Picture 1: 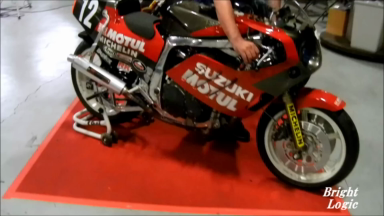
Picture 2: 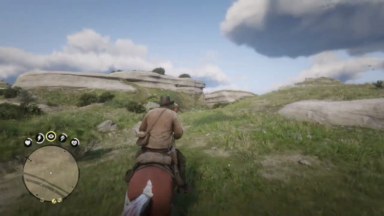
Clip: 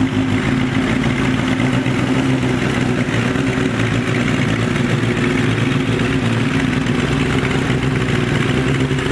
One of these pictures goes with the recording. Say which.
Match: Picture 1